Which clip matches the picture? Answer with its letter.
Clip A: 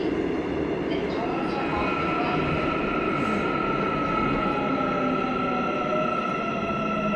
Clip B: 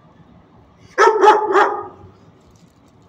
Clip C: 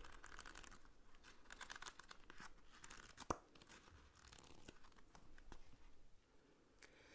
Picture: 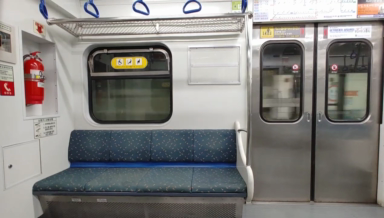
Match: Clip A